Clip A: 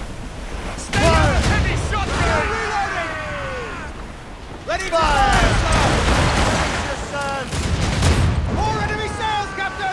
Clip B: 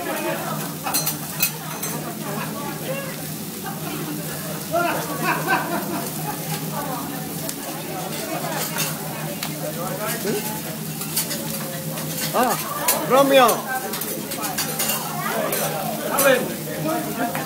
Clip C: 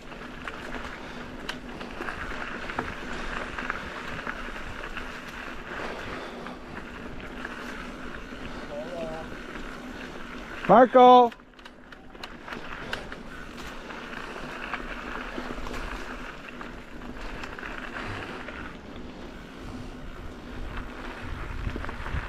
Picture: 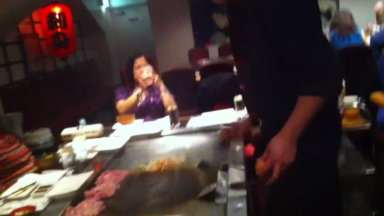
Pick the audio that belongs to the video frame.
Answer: B